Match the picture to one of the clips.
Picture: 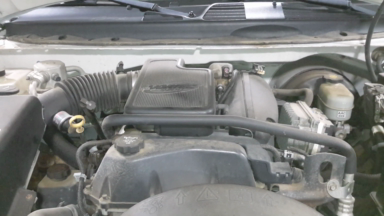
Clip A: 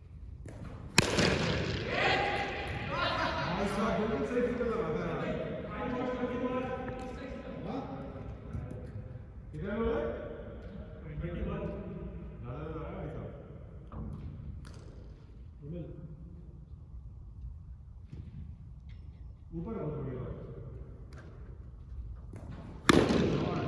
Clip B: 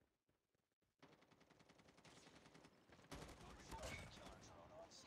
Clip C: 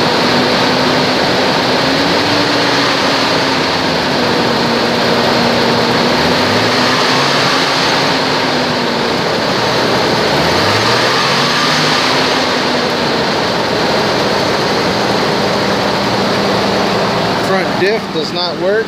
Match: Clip C